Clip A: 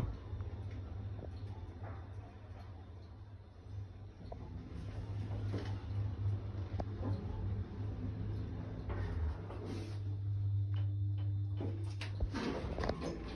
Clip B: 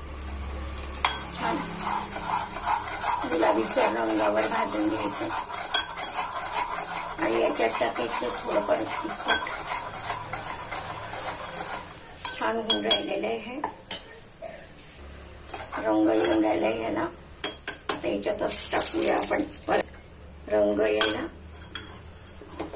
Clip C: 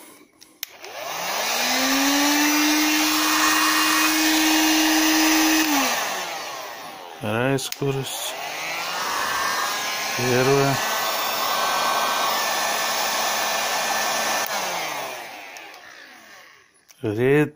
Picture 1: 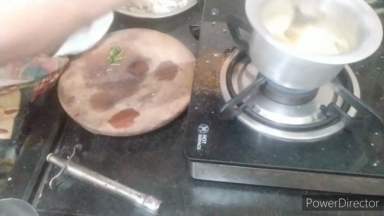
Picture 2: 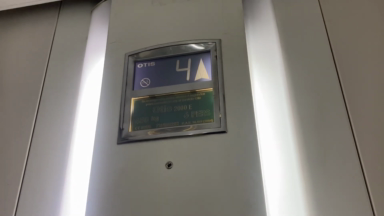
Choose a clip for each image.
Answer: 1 B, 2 A